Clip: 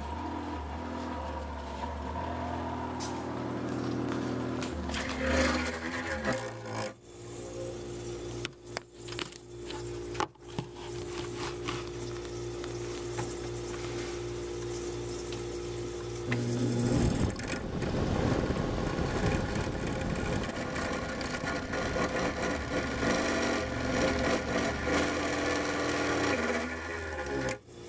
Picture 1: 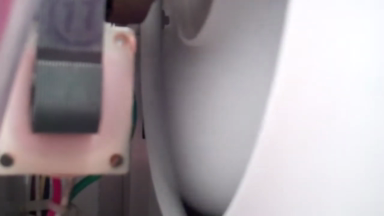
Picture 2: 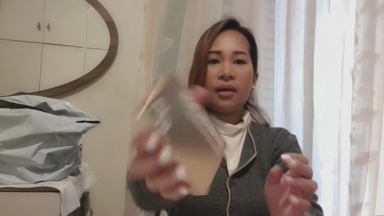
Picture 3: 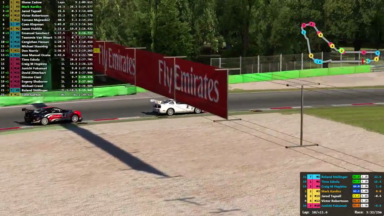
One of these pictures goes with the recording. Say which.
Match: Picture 1